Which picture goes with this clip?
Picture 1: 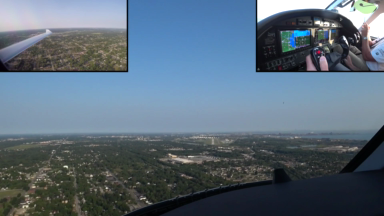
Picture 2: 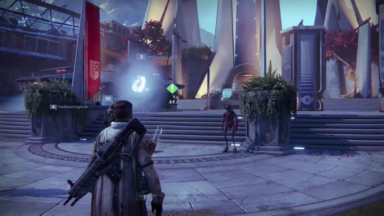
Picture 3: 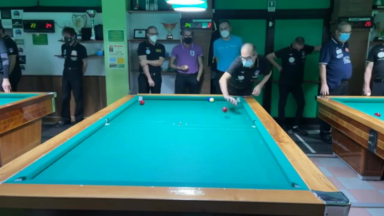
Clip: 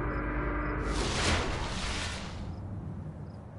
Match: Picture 2